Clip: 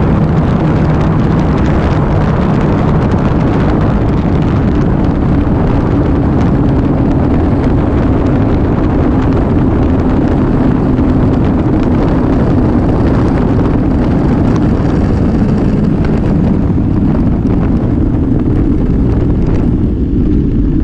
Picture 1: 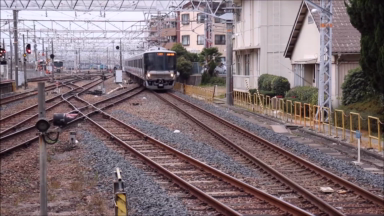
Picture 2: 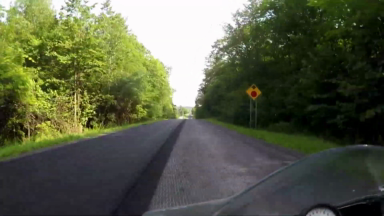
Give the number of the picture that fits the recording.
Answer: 2